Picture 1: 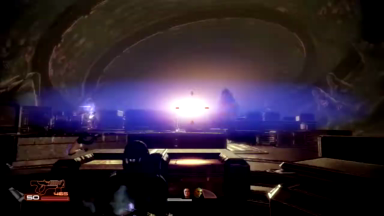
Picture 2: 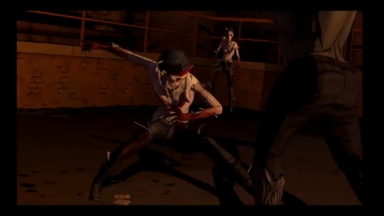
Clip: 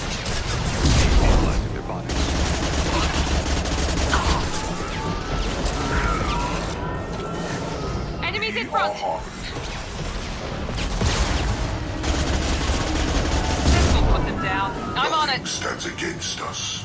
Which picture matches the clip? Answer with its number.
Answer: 1